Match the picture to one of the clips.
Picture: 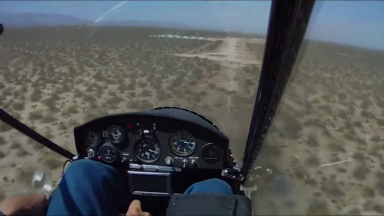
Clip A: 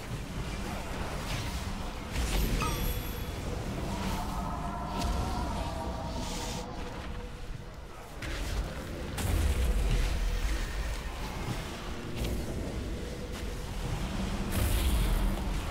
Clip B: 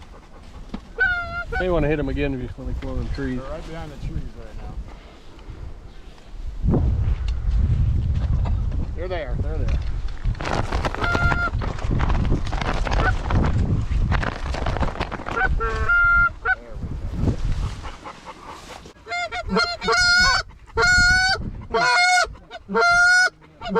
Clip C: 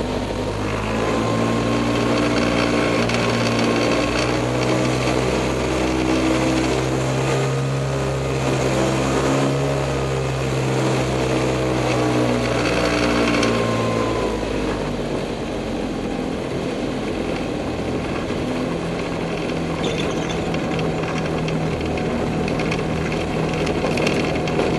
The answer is C